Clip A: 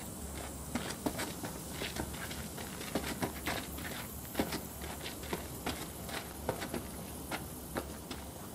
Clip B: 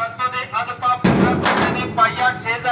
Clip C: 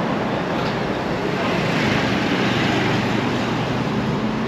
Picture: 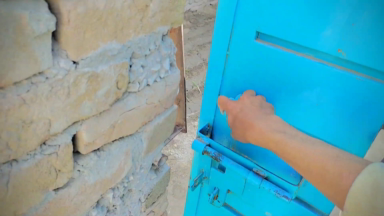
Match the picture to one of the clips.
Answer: B